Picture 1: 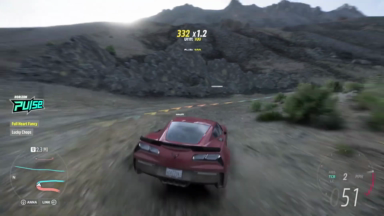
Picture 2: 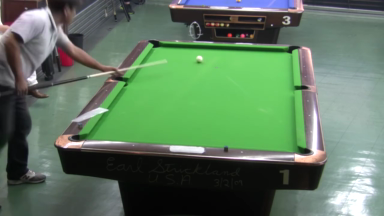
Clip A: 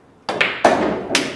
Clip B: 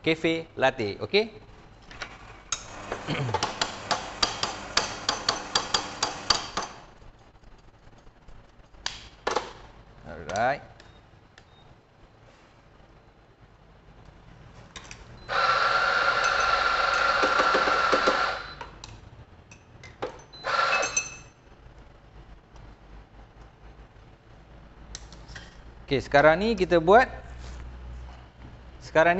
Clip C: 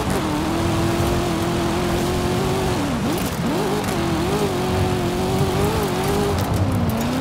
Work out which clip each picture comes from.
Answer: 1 C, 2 A